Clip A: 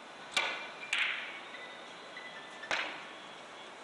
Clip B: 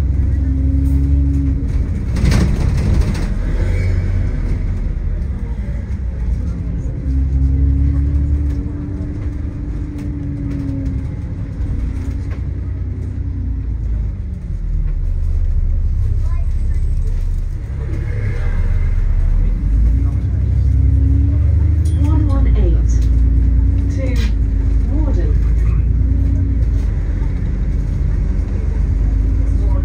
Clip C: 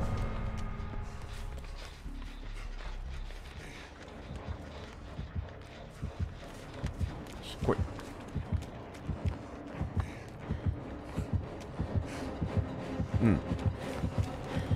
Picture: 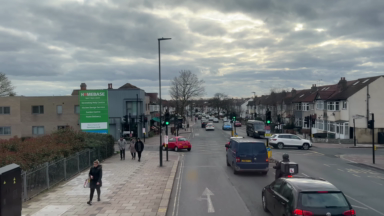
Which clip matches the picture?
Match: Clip B